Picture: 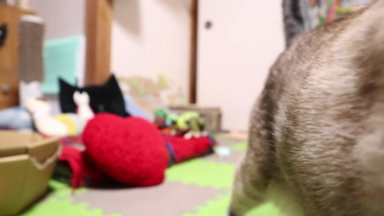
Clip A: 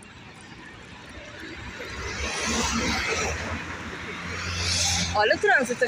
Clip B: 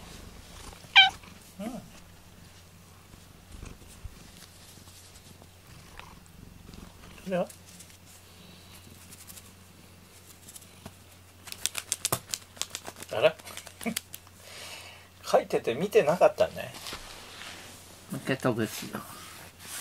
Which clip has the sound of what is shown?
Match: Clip B